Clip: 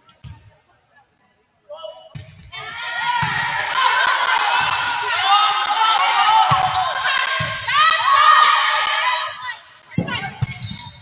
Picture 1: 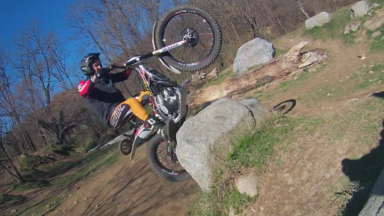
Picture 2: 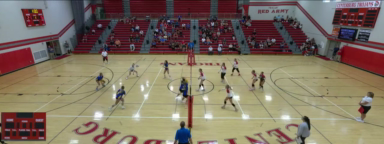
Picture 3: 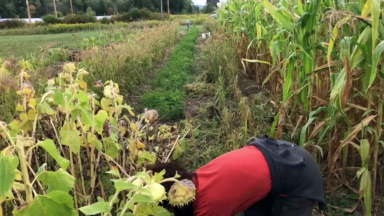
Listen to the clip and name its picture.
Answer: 2